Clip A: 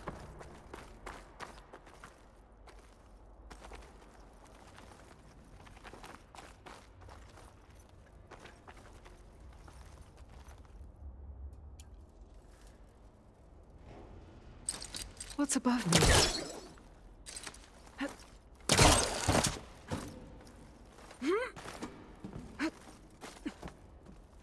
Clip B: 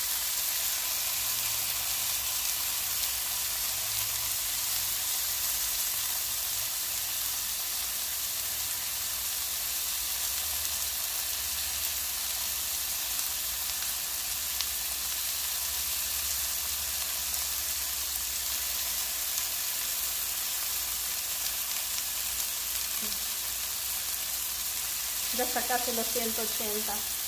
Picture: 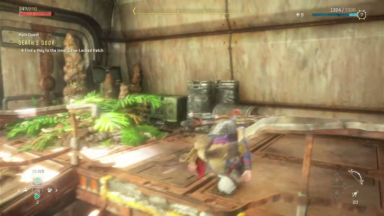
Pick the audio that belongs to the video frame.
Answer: A